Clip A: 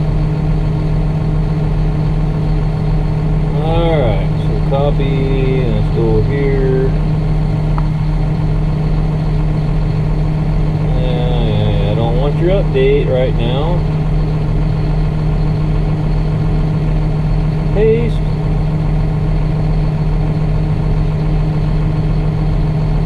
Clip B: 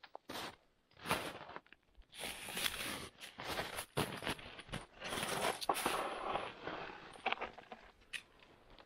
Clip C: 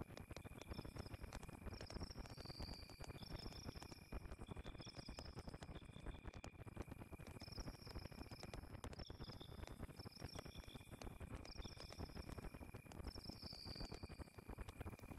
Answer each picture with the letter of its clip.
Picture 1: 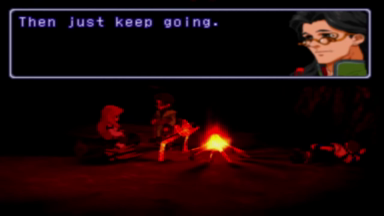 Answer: C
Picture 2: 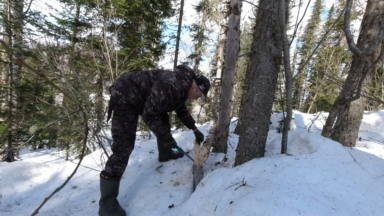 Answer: B